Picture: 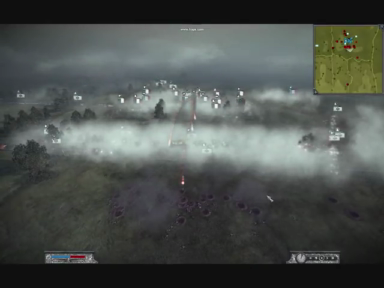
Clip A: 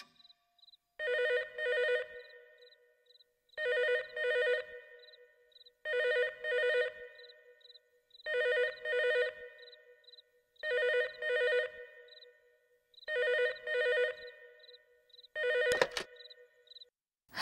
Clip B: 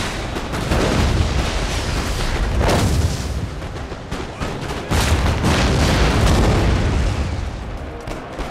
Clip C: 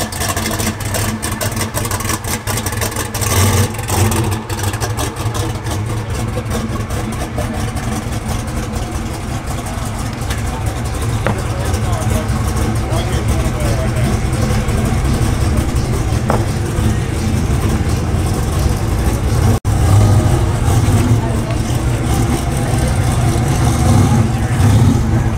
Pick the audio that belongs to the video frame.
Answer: B